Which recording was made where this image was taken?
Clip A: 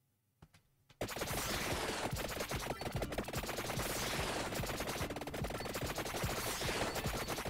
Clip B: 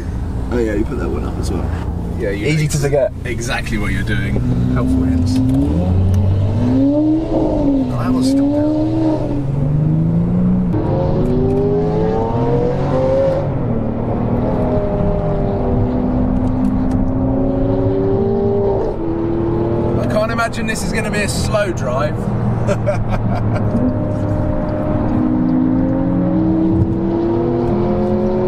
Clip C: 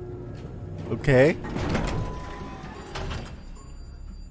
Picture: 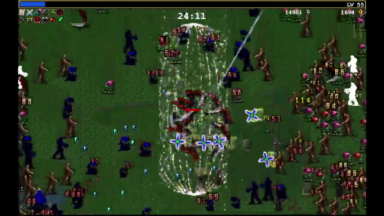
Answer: A